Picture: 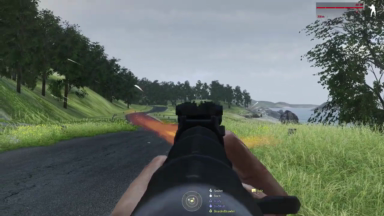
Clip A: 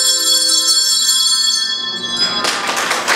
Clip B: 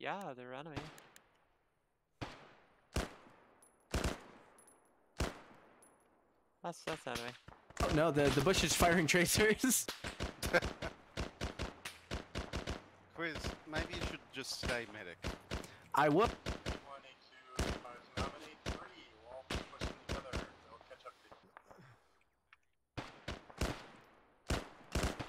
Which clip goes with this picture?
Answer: B